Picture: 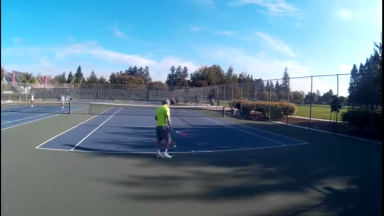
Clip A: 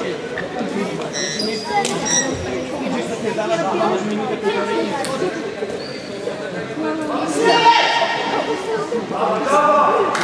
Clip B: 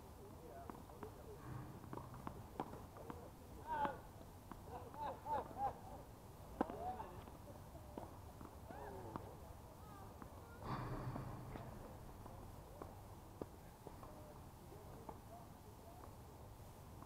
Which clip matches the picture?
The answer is B